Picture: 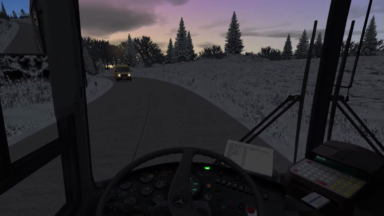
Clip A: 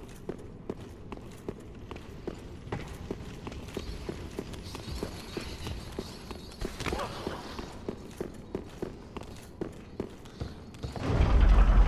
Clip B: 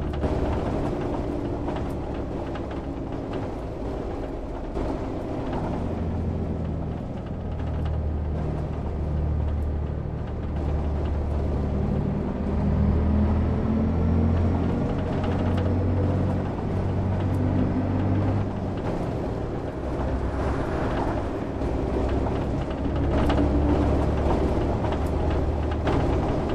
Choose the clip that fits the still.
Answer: B